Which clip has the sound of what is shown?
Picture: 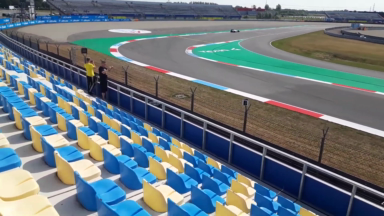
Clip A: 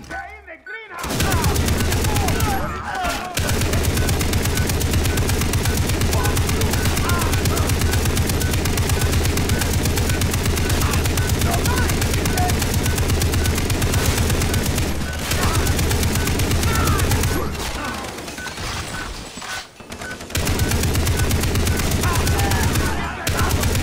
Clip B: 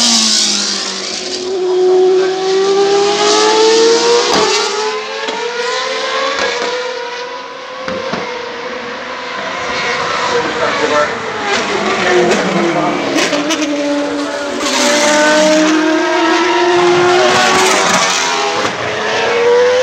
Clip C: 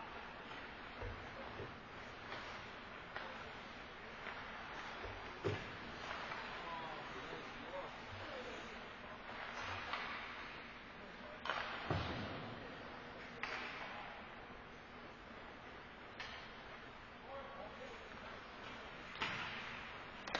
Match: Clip B